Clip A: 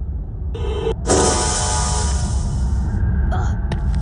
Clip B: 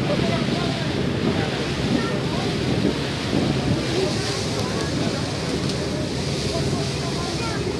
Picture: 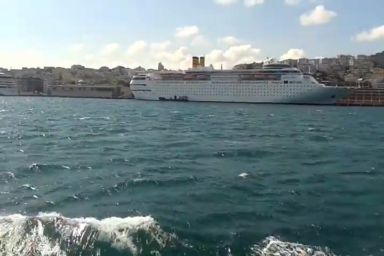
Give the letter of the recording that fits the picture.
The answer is B